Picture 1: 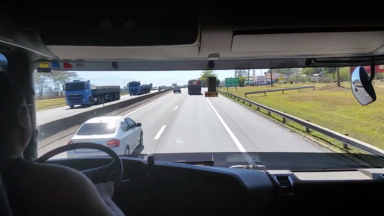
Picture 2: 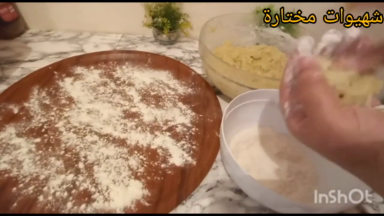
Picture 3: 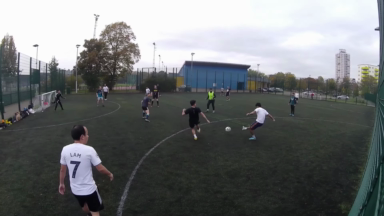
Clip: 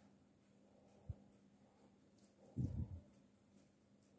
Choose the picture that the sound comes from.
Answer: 2